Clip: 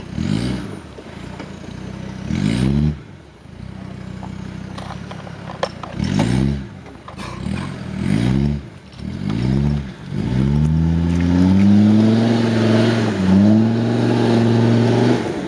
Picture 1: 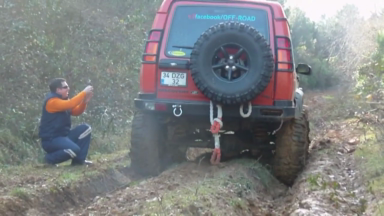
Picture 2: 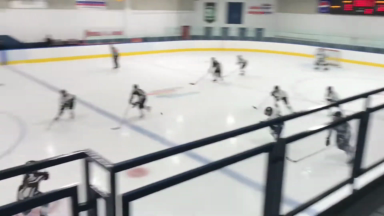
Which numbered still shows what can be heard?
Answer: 1